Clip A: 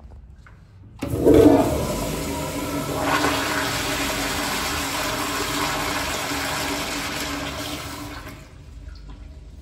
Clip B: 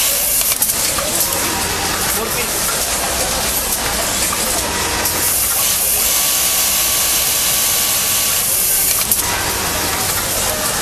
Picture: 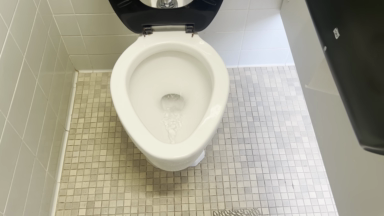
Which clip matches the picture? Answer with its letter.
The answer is A